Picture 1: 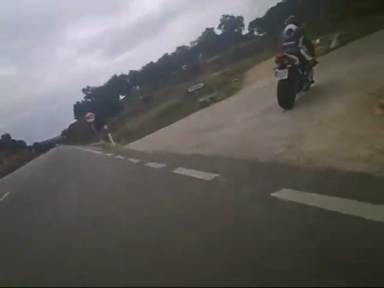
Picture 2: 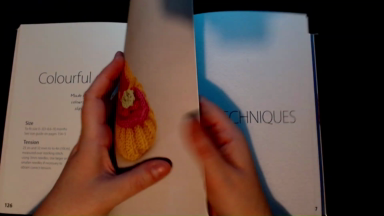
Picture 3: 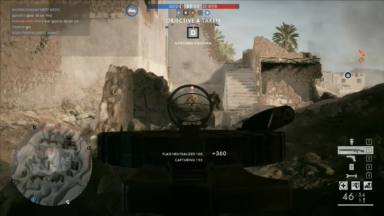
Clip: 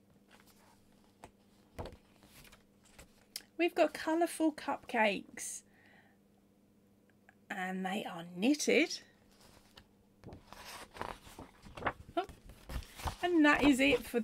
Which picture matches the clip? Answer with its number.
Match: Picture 2